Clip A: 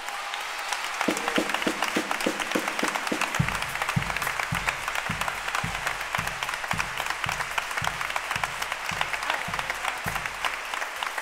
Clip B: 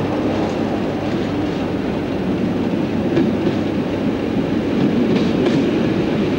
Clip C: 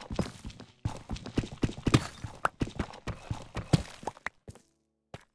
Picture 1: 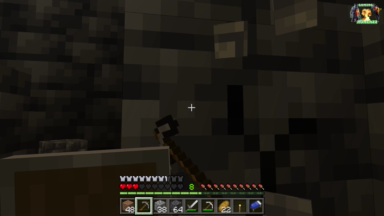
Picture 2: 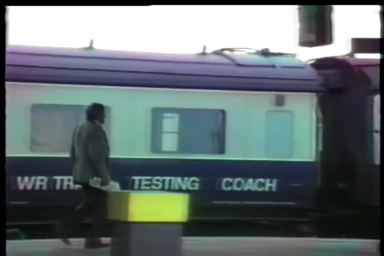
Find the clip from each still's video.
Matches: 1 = C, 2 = B